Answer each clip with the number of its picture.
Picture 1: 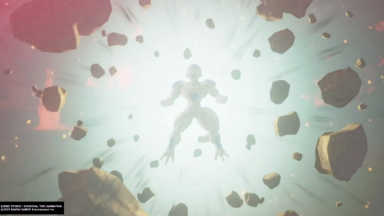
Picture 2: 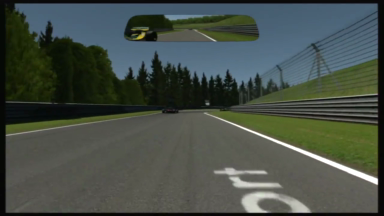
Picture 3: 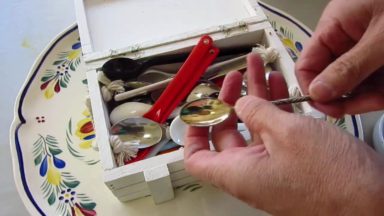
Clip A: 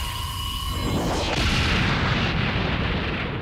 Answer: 1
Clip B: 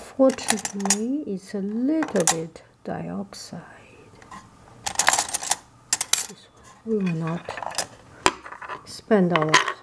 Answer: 3